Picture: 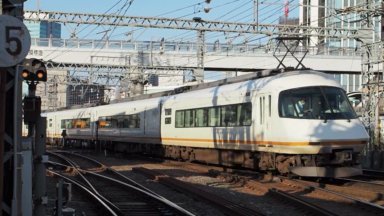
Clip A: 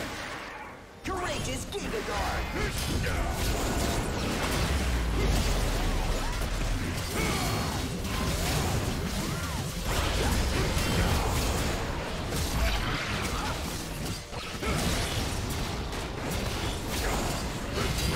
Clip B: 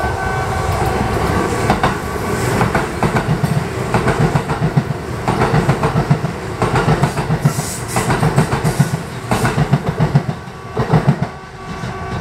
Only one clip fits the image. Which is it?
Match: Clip B